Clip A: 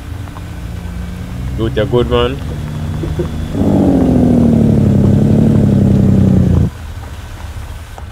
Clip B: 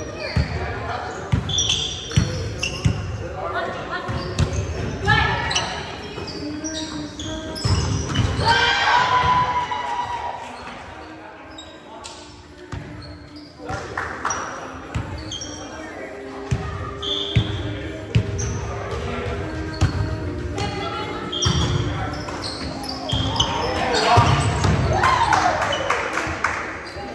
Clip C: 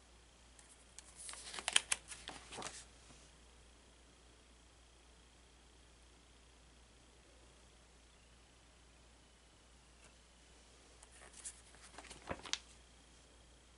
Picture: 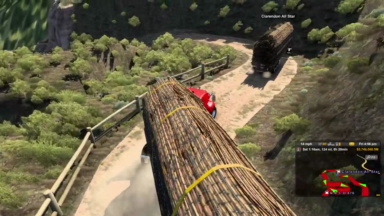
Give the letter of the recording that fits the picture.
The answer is A